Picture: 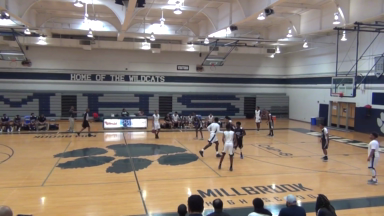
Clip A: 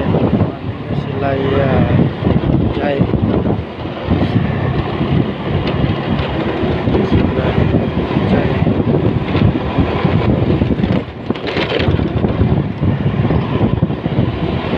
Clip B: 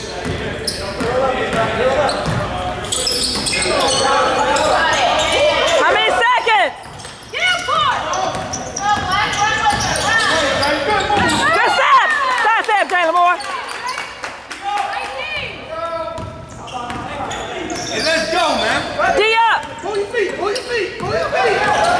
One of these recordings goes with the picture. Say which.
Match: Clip B